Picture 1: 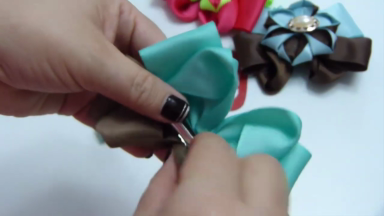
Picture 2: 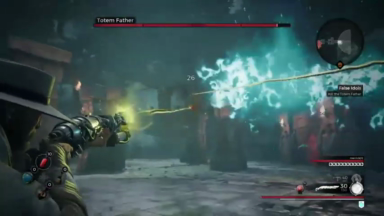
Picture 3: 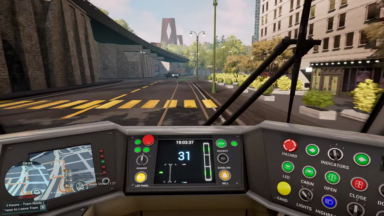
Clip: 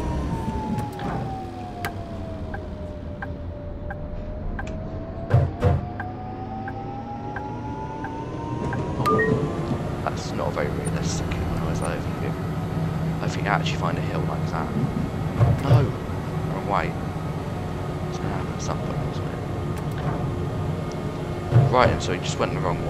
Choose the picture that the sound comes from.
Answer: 3